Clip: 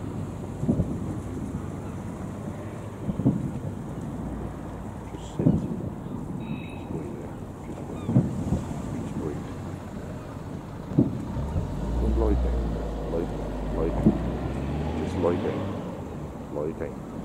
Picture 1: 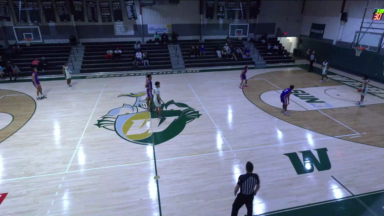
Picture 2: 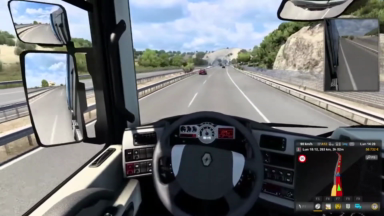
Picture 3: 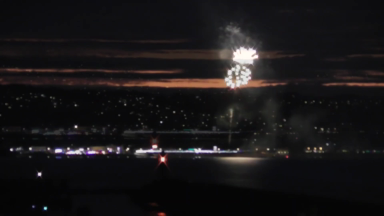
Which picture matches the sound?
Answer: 3